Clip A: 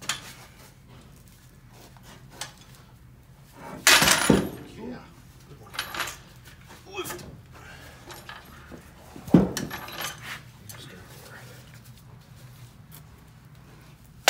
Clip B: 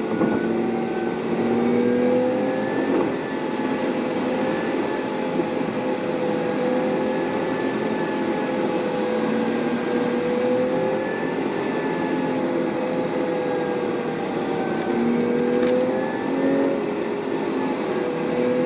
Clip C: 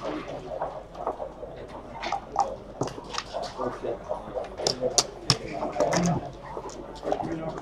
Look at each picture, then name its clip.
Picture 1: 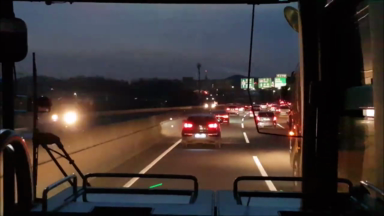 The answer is B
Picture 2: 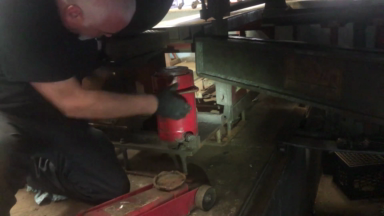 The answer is A